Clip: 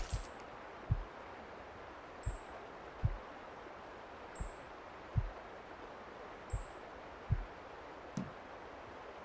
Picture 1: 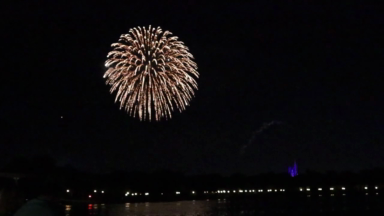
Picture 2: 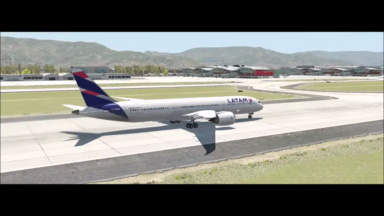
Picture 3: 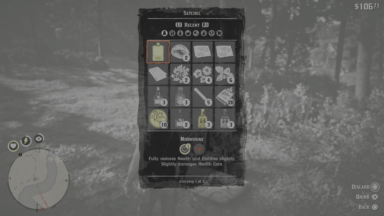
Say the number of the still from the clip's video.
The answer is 3